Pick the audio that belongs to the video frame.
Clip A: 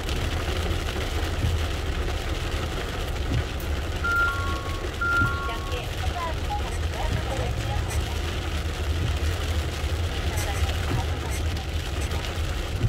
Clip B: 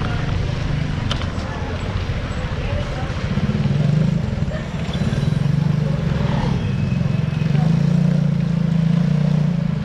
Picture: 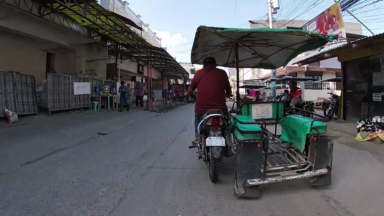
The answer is B